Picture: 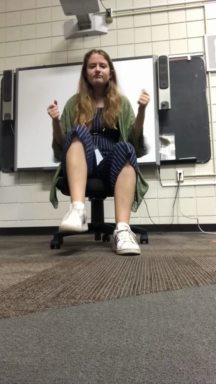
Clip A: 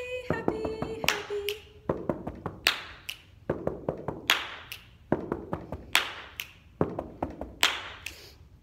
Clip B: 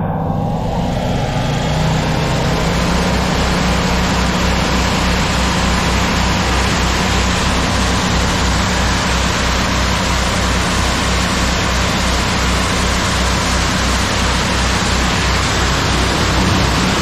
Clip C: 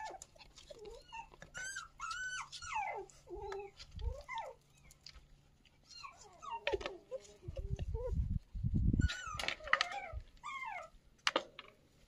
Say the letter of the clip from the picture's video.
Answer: A